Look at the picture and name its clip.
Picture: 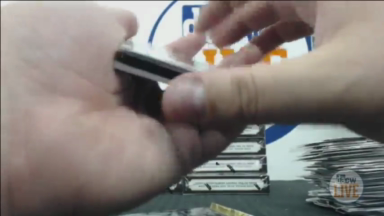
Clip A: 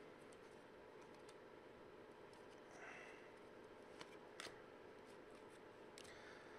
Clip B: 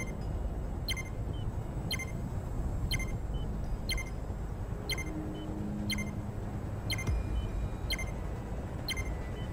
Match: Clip A